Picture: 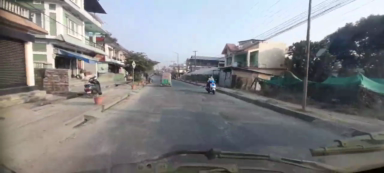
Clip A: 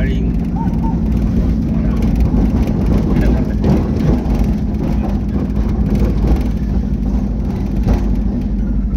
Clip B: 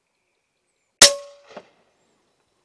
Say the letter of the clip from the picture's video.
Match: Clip A